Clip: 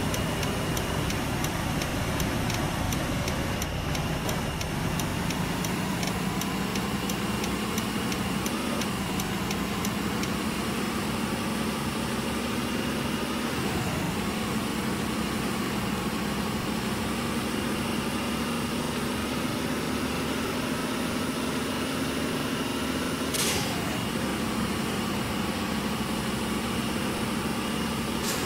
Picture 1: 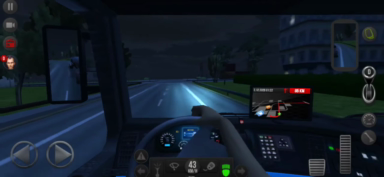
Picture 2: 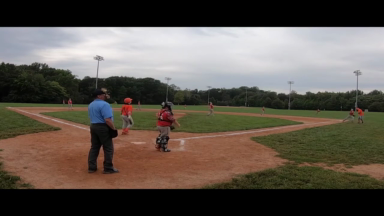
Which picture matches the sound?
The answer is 1